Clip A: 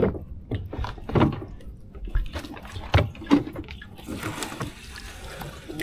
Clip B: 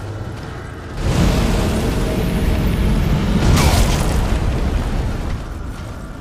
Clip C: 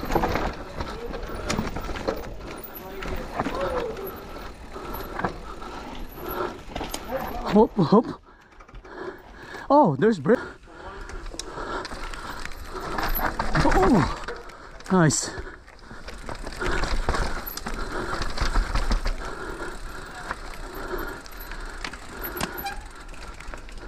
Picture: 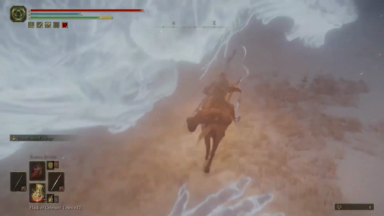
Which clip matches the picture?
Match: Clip B